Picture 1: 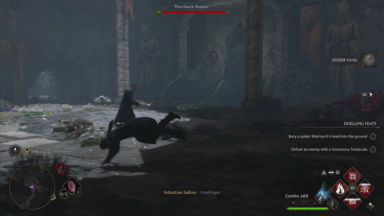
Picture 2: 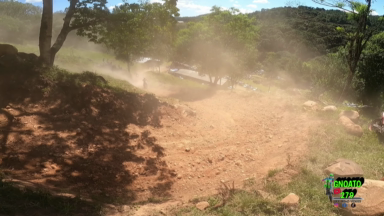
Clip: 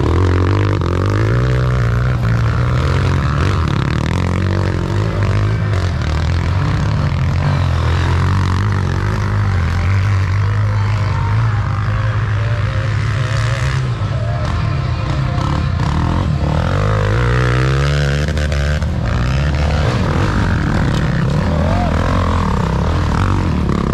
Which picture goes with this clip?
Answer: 2